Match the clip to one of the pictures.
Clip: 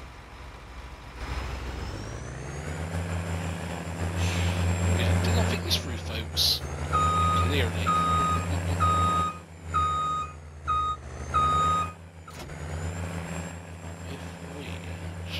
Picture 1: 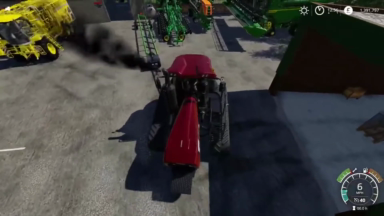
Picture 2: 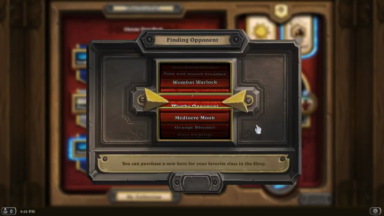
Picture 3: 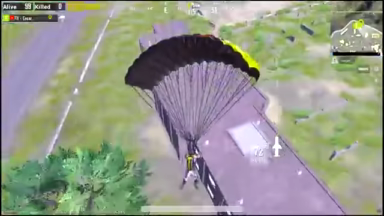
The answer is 1